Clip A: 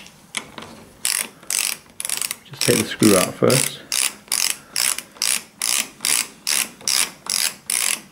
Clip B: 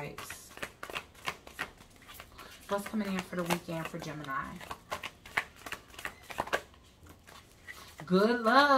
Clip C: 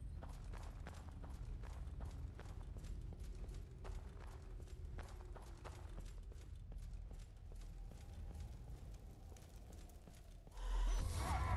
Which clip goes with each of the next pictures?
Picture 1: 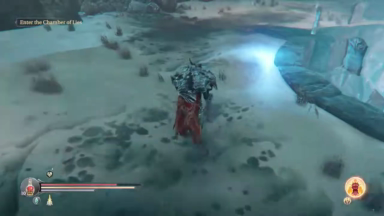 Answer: C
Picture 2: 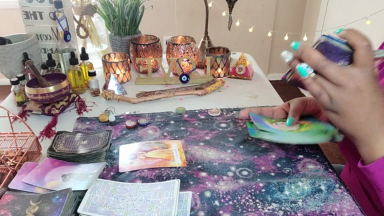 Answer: B